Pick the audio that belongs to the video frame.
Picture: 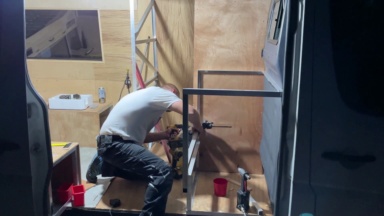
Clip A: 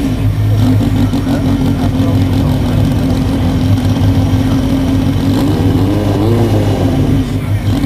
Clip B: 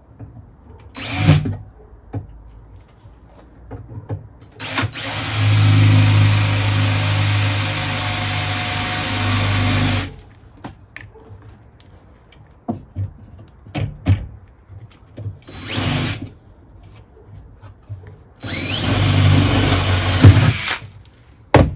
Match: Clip B